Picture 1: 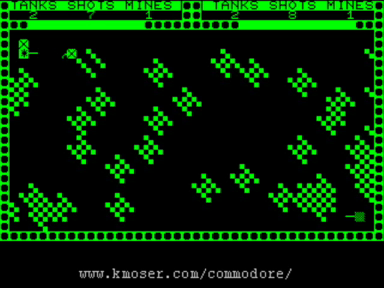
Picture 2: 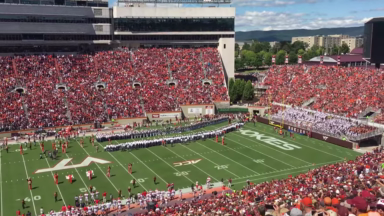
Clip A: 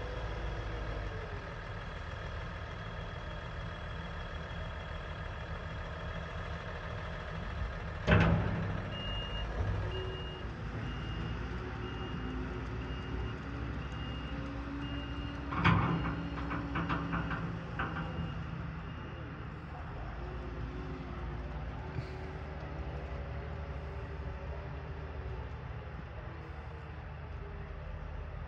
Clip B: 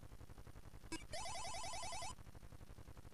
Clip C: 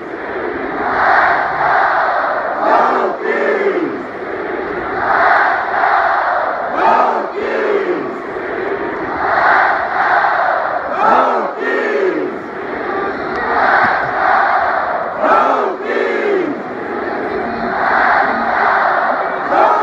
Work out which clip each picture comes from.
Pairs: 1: B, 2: C